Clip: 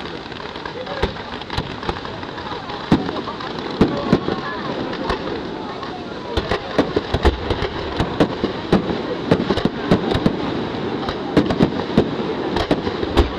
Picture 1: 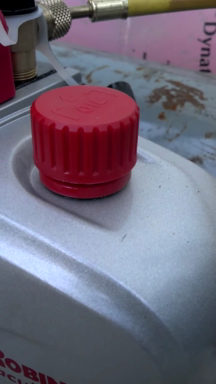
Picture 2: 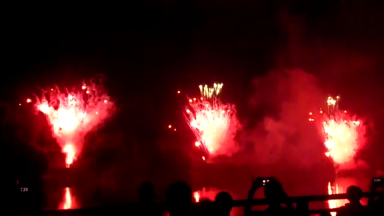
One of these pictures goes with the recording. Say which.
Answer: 2